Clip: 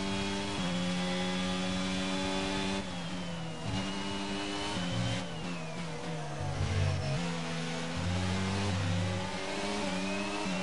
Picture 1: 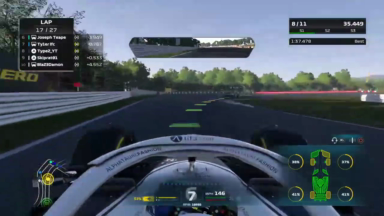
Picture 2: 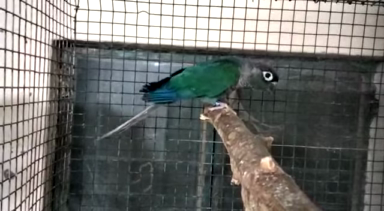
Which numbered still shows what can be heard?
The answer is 1